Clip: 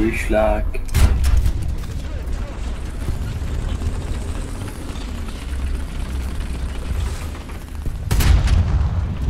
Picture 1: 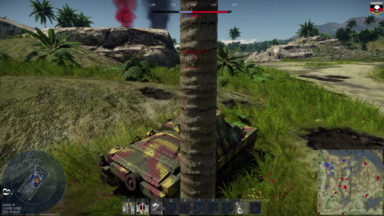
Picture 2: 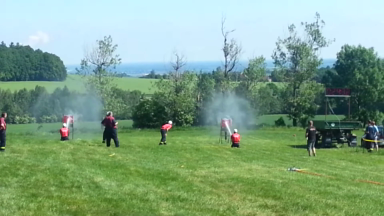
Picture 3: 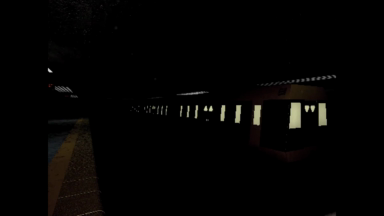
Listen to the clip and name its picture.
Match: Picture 1